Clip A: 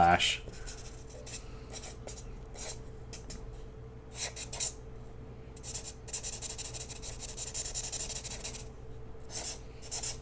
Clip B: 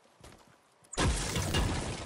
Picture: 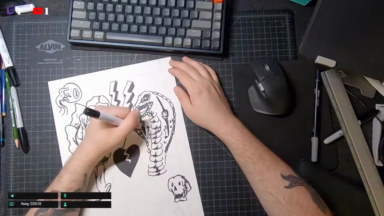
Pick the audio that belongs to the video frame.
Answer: A